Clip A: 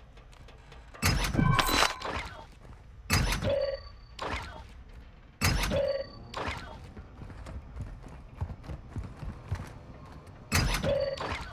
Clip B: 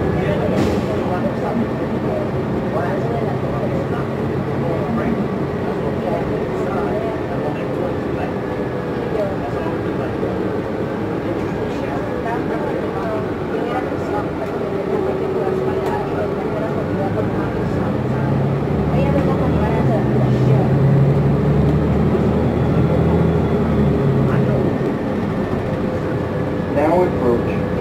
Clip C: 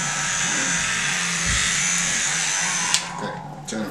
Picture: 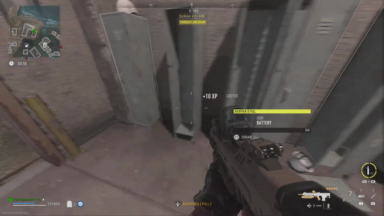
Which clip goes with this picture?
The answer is A